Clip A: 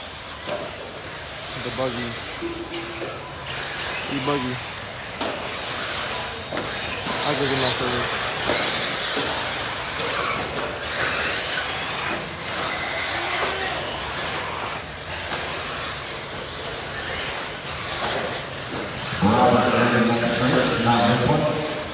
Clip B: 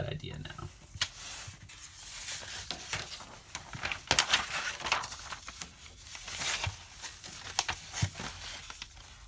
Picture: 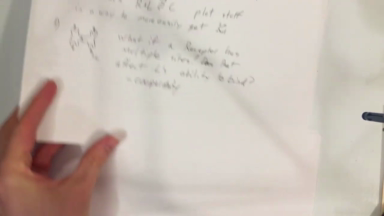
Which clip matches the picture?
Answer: B